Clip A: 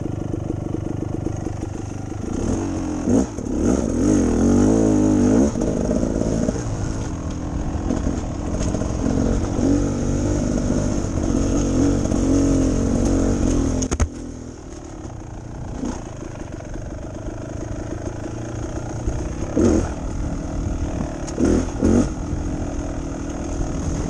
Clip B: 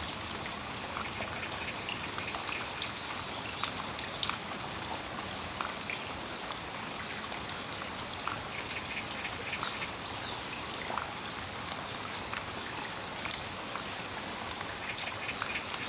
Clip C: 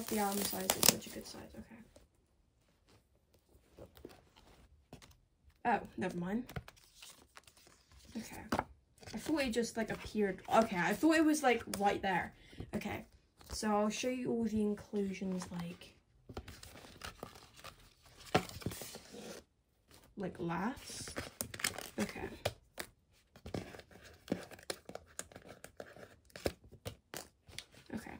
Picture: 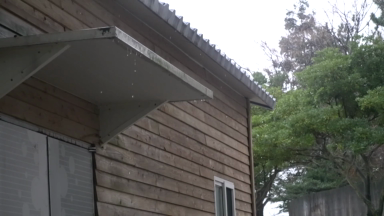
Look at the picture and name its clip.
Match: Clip B